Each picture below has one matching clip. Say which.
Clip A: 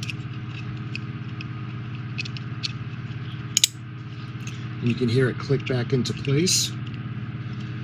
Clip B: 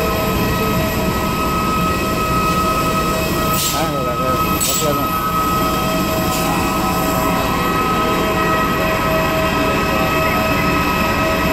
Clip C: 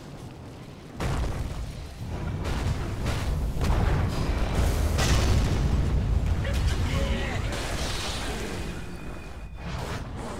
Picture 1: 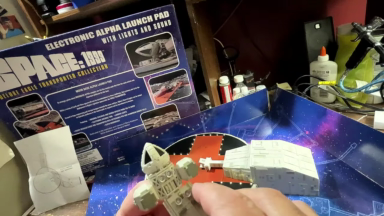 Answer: A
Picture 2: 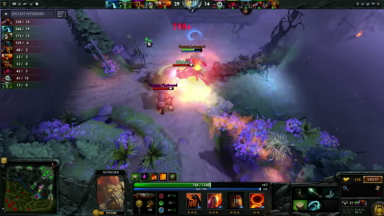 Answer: C